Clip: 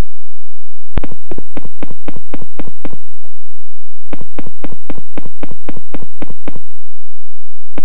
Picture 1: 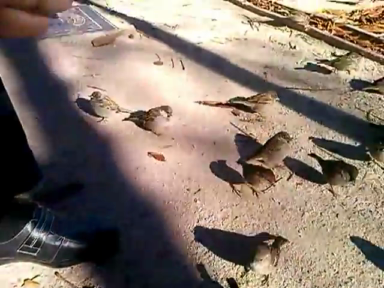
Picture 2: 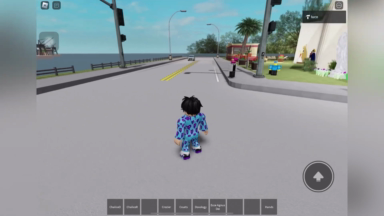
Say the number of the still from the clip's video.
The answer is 2